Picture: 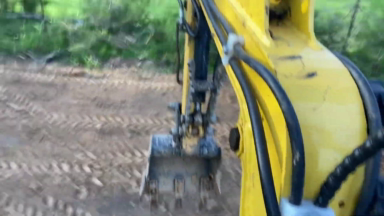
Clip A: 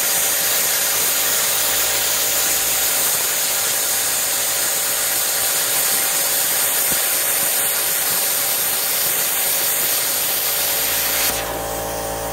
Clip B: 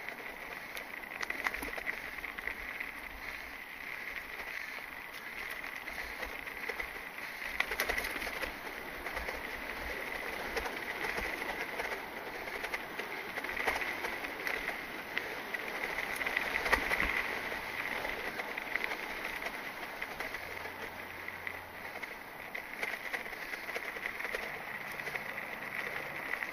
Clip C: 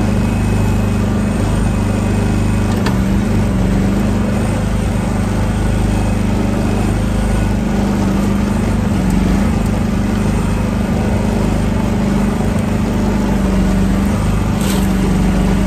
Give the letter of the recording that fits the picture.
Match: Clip C